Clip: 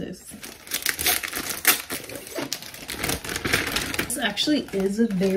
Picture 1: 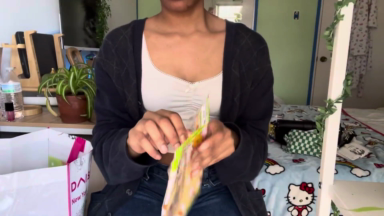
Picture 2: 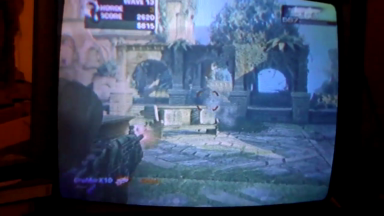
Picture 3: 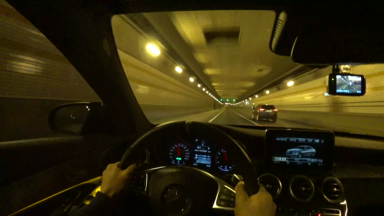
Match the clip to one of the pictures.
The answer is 1